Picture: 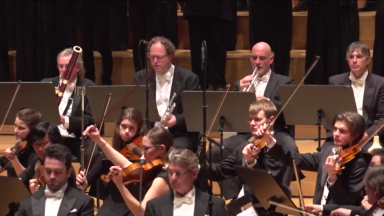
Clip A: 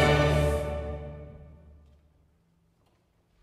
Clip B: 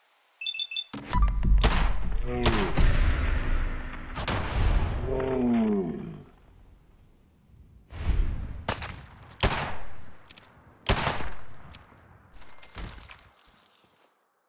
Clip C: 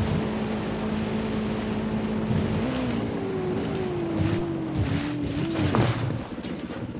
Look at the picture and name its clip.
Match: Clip A